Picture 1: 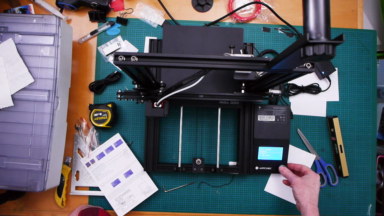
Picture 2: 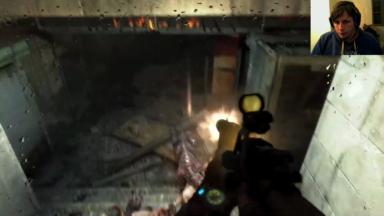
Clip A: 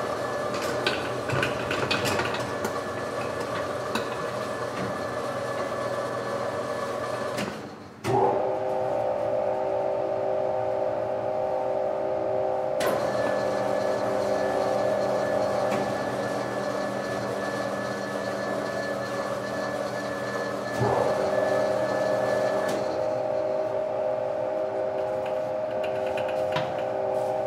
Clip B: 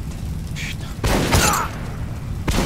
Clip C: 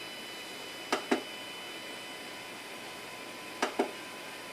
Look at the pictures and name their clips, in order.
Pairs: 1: C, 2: B